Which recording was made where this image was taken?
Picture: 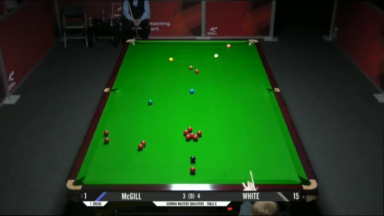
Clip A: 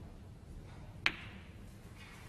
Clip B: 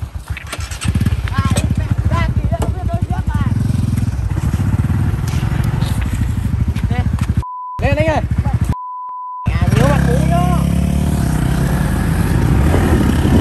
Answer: A